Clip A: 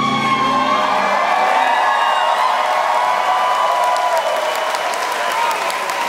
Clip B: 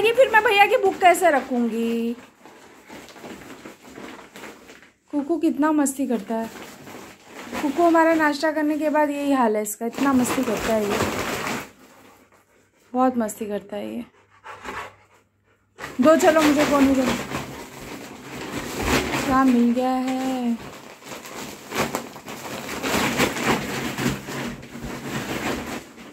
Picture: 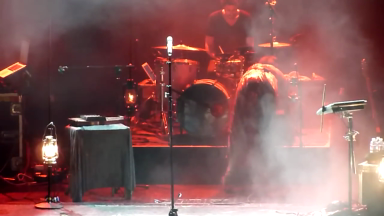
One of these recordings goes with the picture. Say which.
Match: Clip A